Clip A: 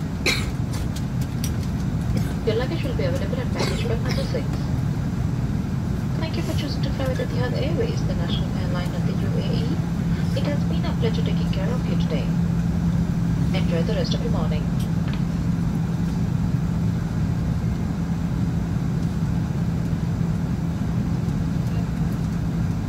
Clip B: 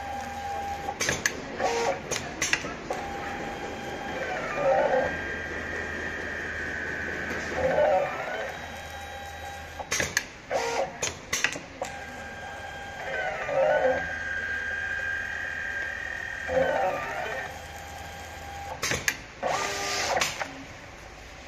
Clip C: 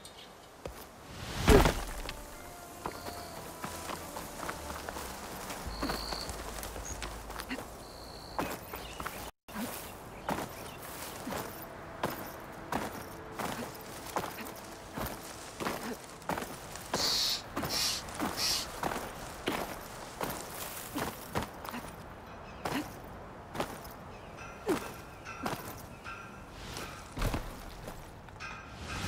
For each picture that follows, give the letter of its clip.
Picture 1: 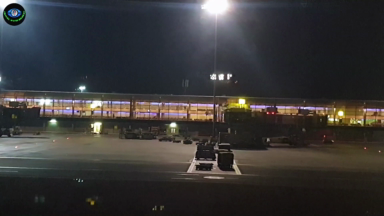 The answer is A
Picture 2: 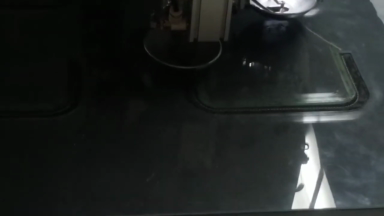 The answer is B